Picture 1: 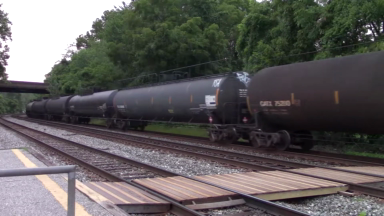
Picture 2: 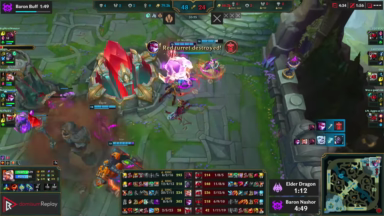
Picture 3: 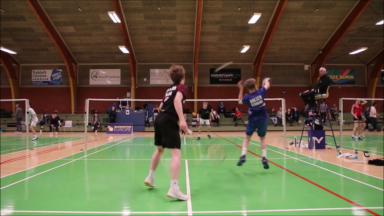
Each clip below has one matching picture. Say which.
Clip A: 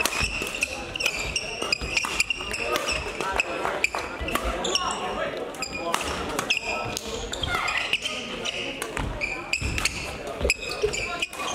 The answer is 3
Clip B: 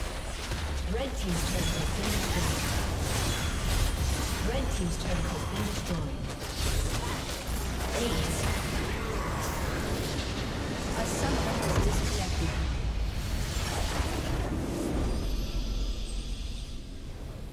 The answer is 2